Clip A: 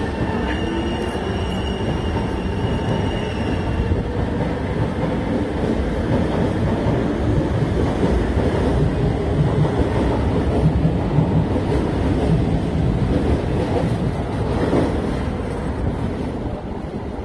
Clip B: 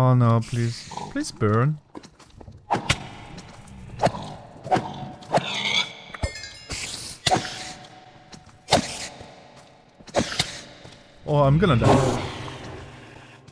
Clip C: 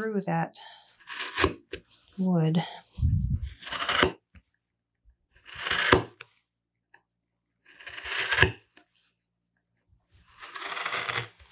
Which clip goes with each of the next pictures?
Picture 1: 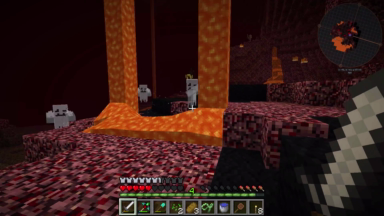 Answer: B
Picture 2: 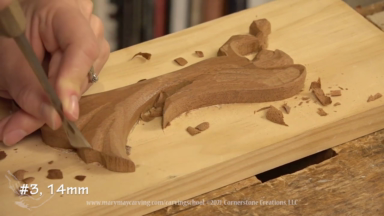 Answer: C